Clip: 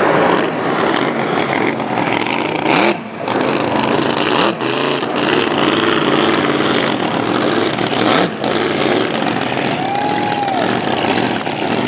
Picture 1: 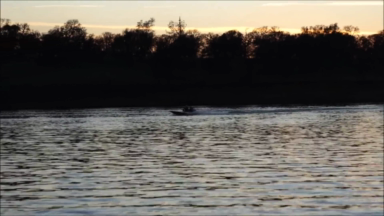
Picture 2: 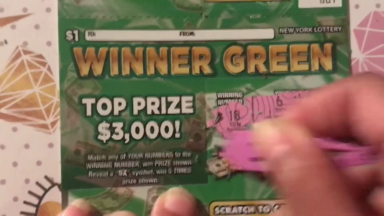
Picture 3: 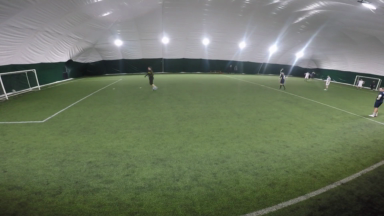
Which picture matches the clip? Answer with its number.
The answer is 1